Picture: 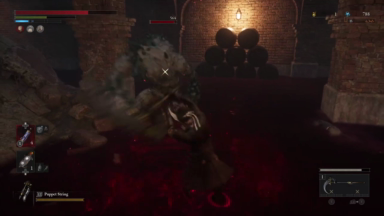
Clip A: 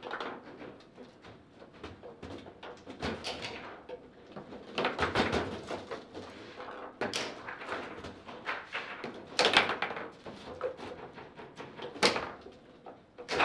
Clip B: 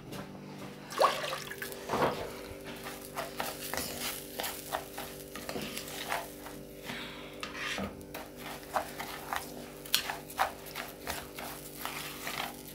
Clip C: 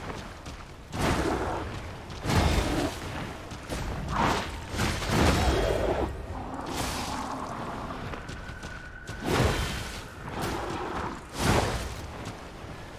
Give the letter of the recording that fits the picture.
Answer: C